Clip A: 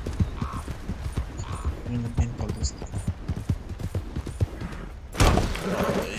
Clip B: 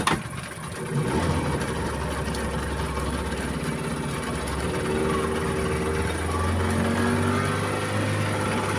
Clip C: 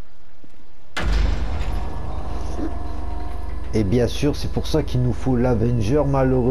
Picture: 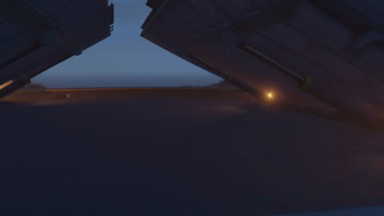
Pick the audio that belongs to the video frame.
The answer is C